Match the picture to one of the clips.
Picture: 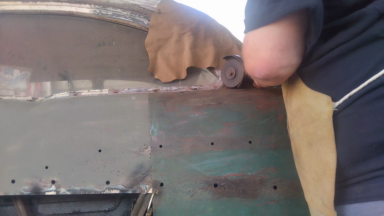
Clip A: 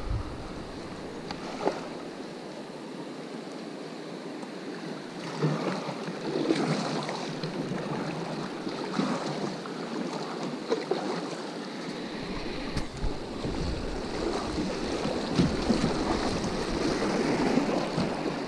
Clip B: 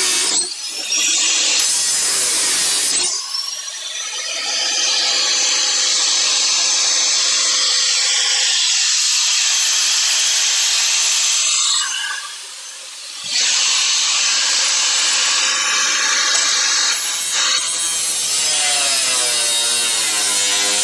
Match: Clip B